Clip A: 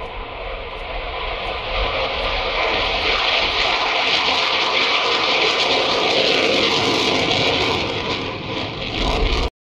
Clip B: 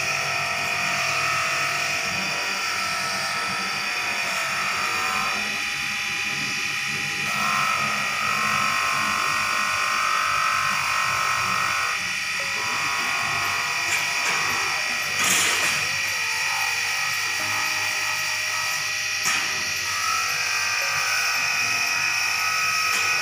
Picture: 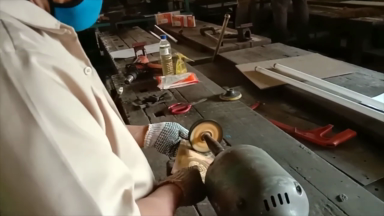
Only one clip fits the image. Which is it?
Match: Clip B